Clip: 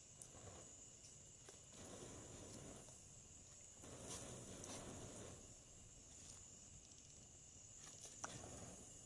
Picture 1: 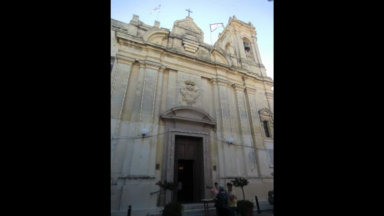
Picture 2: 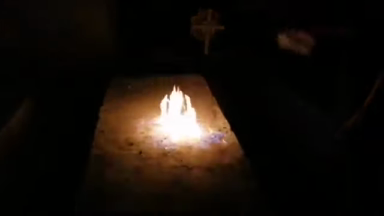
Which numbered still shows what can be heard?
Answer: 2